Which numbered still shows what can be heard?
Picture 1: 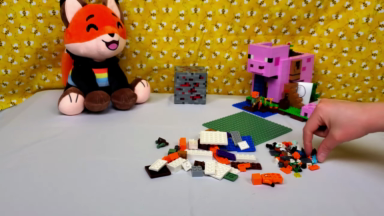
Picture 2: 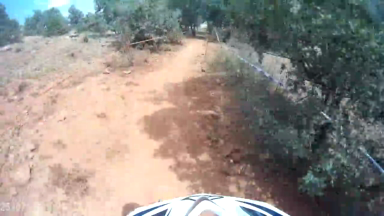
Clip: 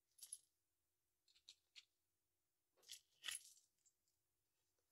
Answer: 1